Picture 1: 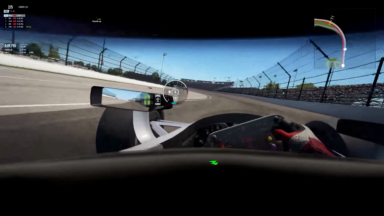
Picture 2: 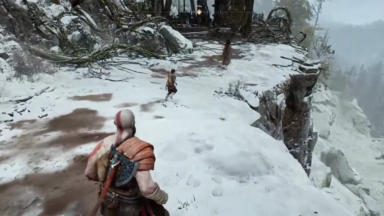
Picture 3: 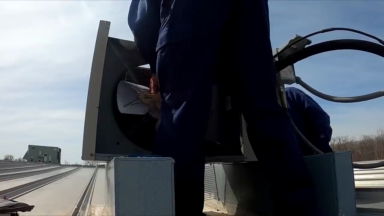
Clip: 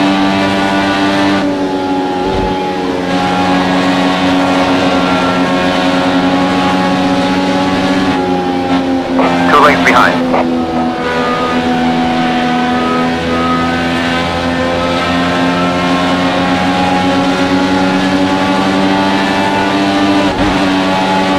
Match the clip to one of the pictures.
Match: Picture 1